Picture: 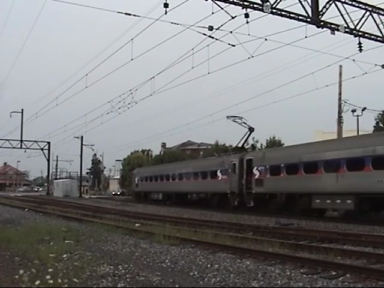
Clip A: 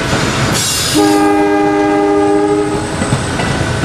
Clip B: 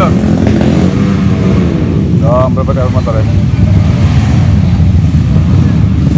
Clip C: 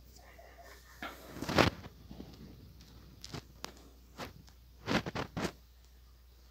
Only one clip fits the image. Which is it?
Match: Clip A